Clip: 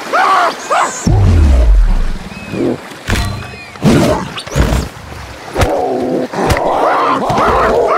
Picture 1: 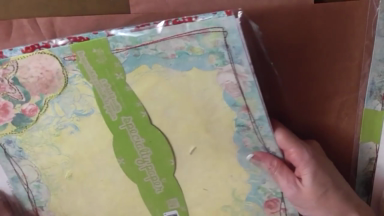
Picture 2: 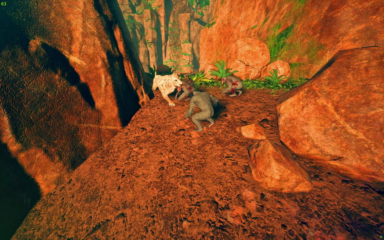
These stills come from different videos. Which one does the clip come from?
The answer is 2